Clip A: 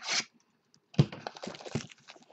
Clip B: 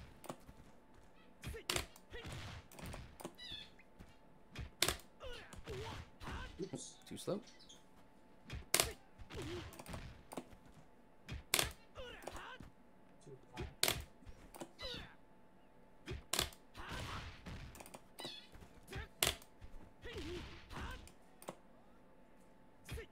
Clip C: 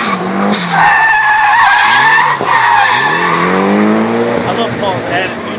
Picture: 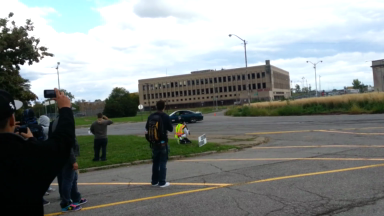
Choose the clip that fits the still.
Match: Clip C